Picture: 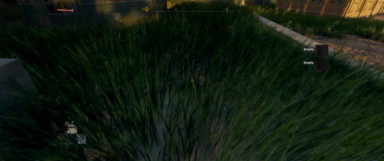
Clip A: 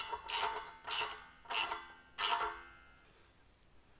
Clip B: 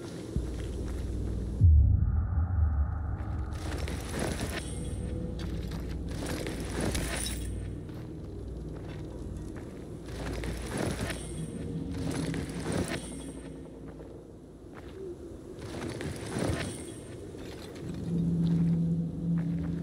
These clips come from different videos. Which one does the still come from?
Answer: B